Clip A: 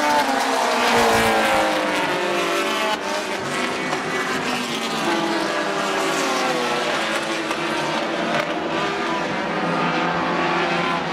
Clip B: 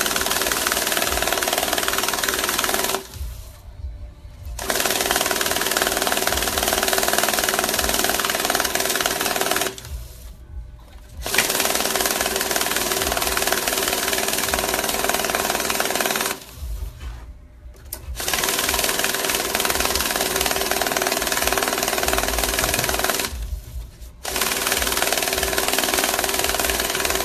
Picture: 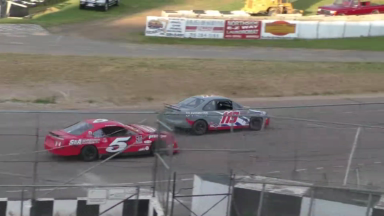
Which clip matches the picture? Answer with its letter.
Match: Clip A